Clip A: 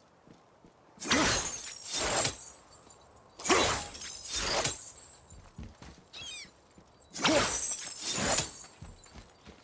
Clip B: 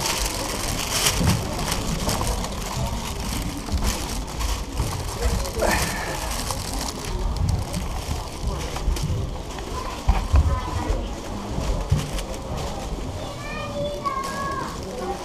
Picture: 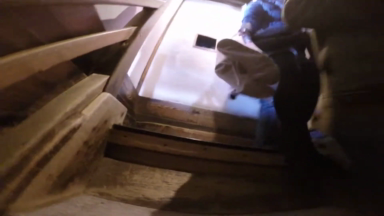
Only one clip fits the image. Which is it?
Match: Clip B